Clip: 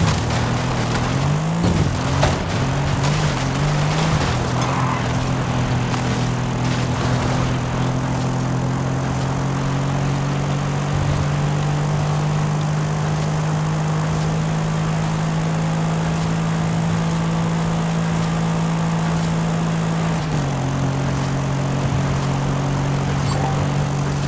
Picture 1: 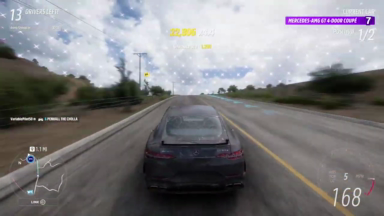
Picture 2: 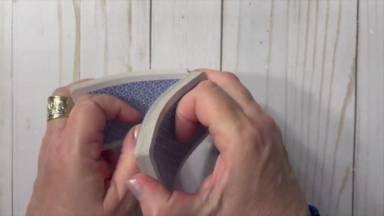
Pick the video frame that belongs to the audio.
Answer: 1